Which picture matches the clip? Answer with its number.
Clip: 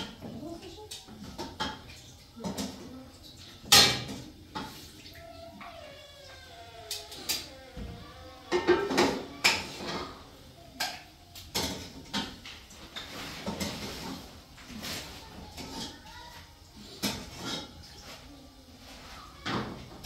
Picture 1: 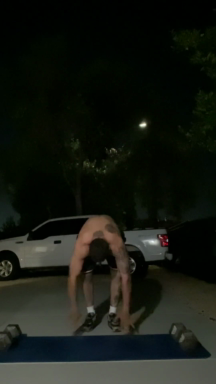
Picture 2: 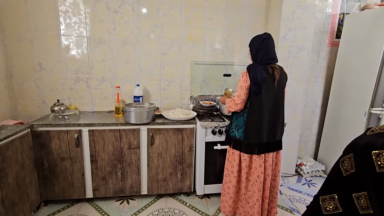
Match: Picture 2